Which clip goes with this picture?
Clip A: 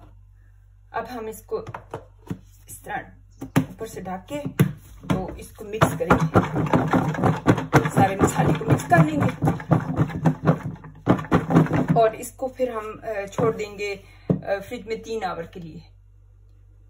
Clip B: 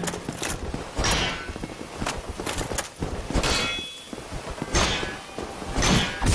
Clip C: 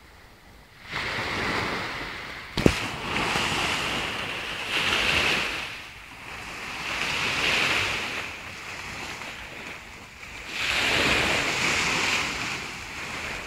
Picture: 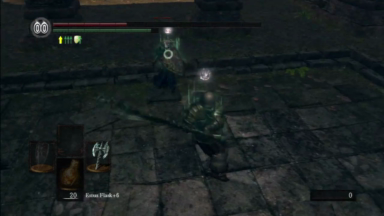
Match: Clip B